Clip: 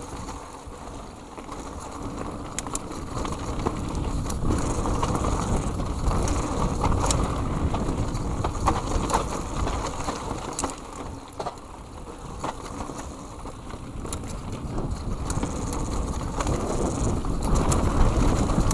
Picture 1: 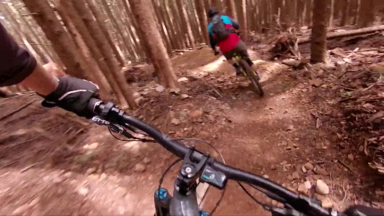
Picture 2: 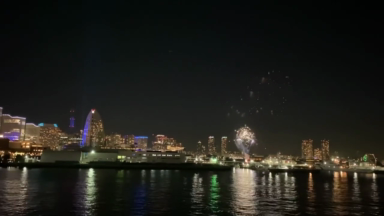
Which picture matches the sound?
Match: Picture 1